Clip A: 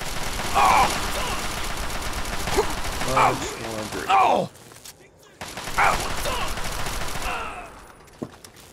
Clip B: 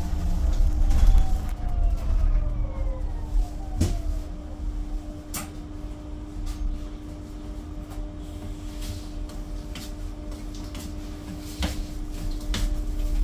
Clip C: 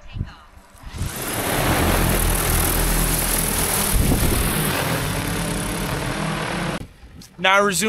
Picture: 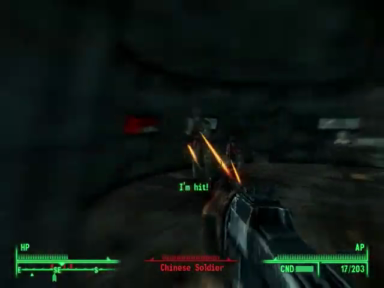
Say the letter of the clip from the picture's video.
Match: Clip A